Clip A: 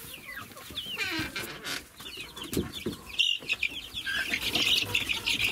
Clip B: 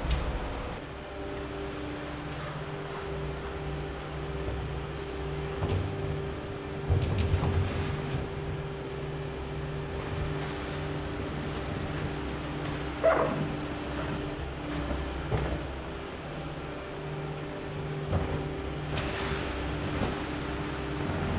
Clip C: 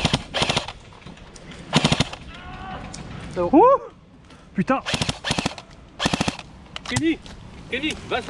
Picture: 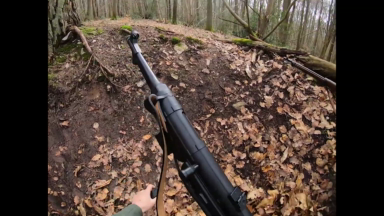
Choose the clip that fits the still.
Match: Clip C